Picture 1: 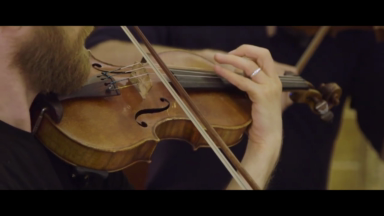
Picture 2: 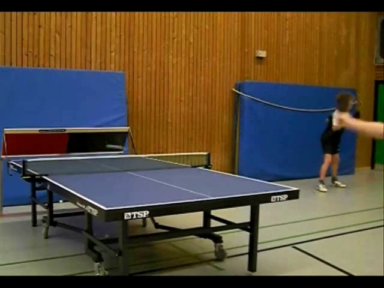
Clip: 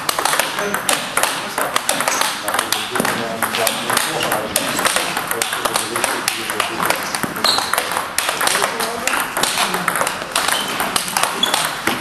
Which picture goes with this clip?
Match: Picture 2